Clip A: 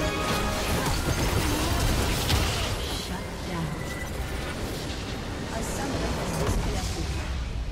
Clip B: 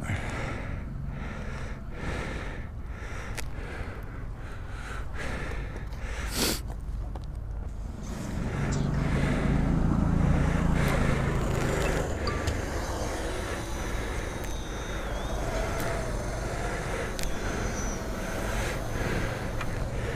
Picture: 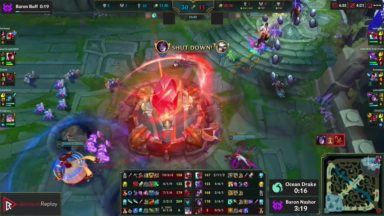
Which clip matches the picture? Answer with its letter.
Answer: A